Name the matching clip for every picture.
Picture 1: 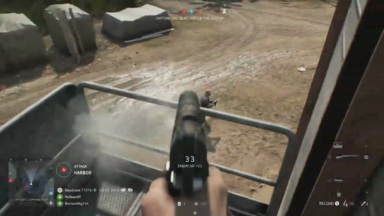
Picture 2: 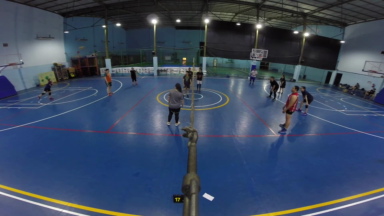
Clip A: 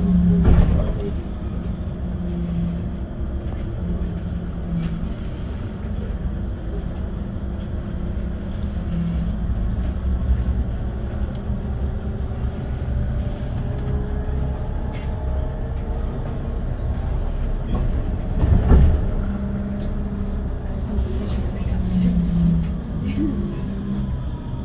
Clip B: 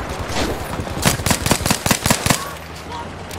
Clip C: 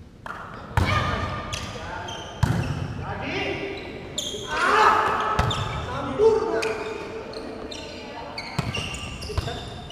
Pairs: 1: B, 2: C